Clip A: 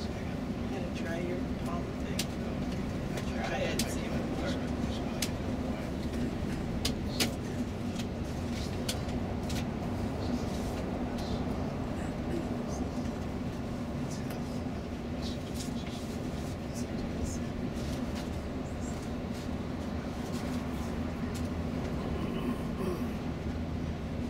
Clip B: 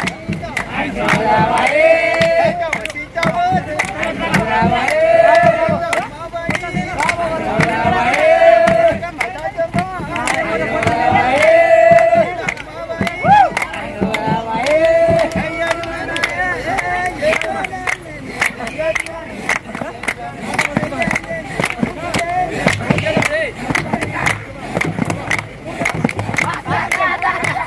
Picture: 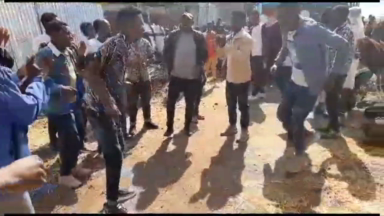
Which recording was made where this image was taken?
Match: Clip B